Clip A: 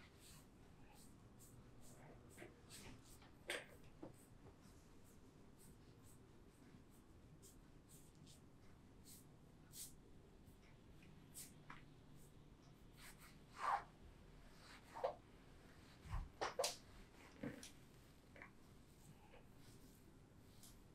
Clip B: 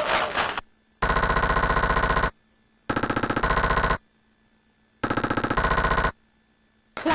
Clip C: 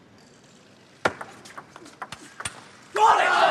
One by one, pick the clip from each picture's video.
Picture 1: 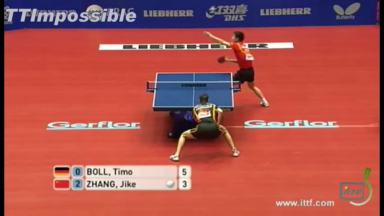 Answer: C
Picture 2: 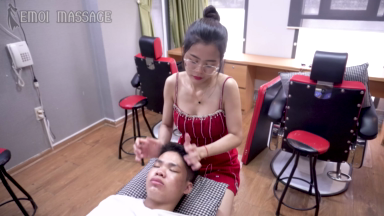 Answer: A